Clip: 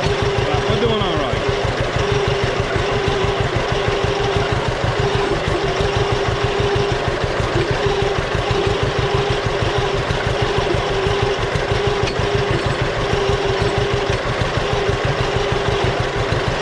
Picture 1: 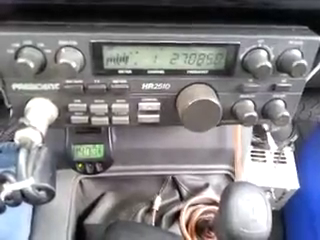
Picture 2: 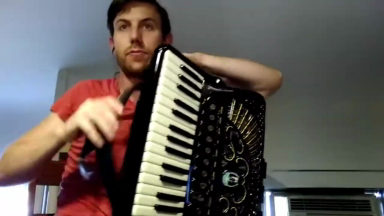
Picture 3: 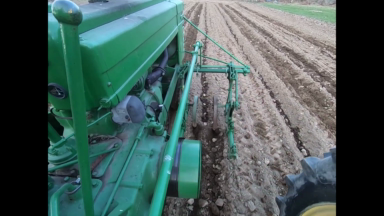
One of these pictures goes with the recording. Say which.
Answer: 3